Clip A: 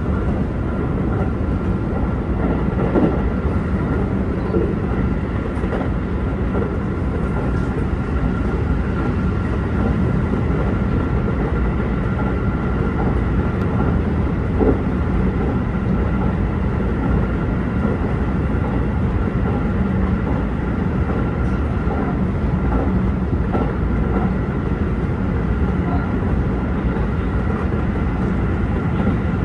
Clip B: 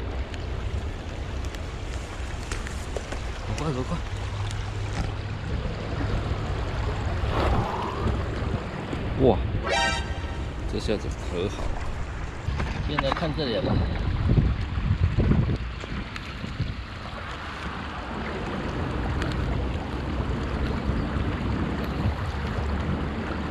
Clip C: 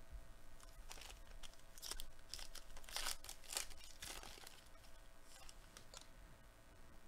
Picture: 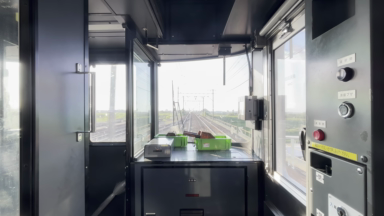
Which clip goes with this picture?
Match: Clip A